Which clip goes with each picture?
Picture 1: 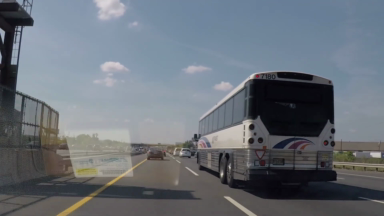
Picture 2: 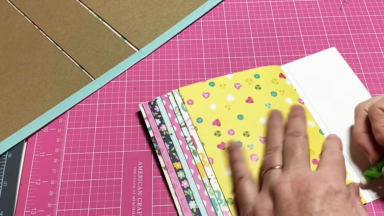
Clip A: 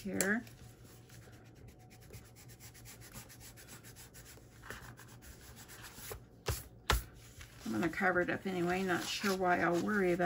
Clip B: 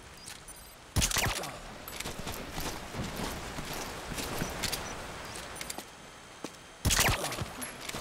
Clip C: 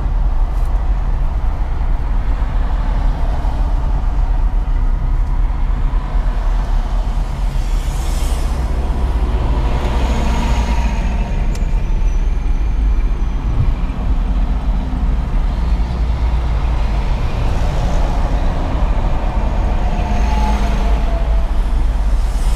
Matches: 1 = C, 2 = A